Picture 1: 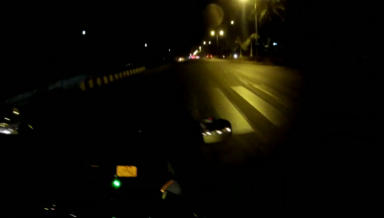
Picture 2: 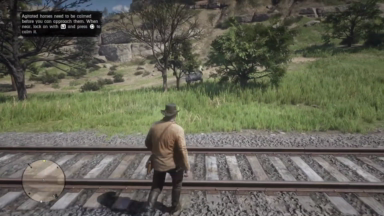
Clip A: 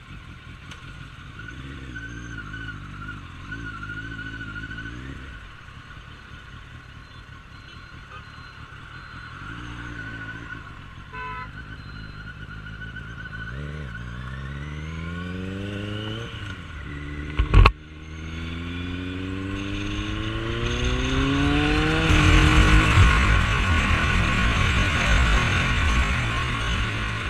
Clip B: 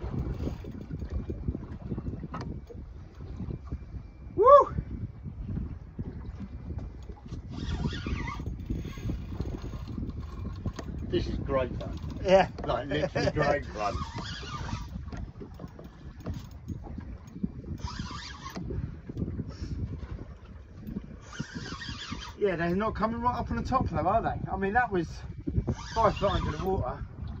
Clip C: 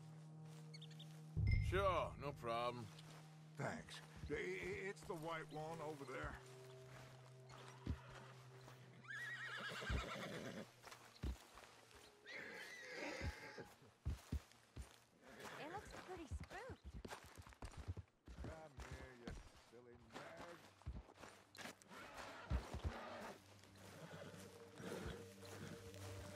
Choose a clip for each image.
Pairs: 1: A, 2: C